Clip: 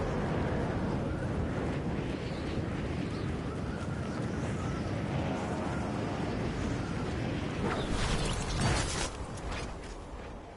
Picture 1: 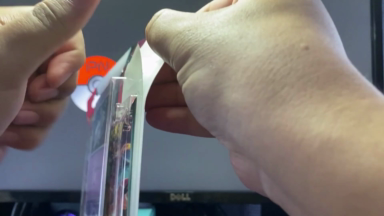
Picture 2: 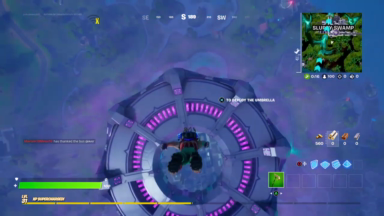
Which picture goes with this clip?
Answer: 2